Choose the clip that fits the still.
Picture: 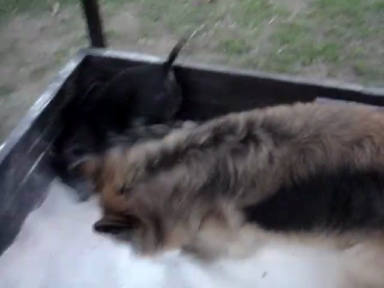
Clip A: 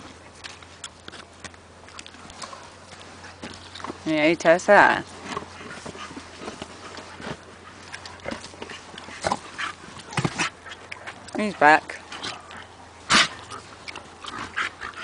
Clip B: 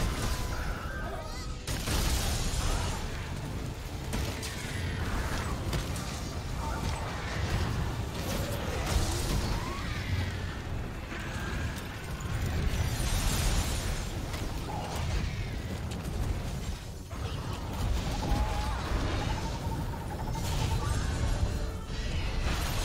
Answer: A